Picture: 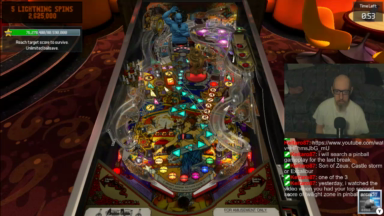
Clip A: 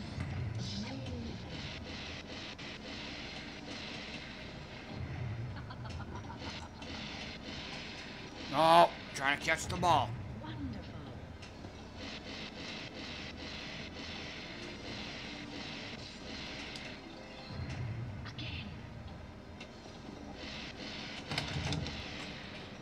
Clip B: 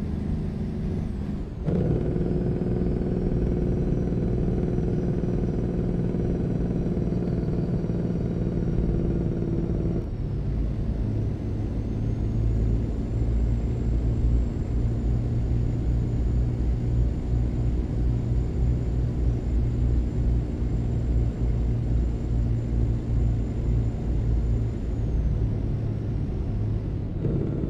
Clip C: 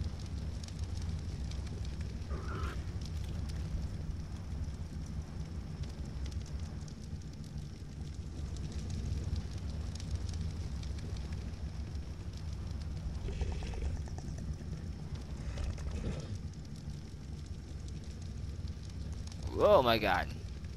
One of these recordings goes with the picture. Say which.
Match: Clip A